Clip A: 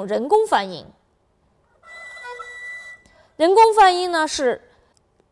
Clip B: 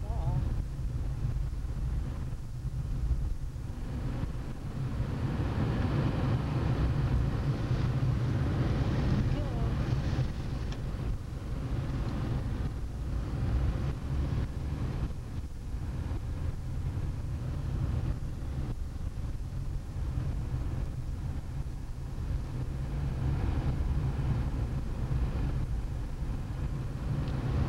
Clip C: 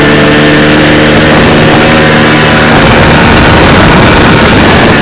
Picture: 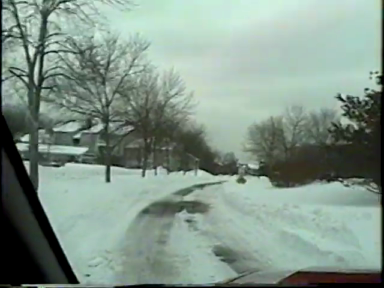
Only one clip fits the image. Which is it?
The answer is B